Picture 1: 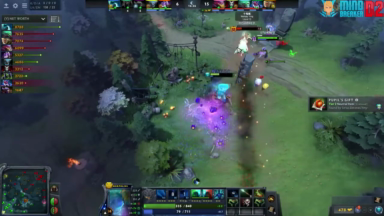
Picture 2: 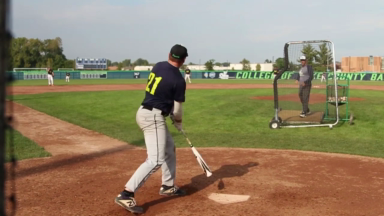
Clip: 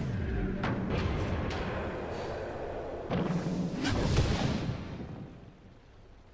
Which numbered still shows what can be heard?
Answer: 1